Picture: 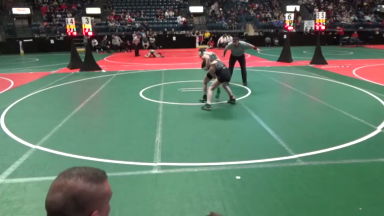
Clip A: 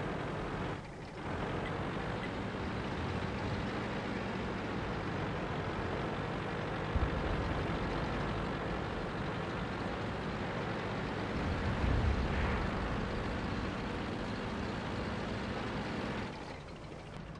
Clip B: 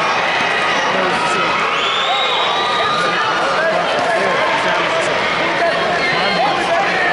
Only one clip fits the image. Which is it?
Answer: B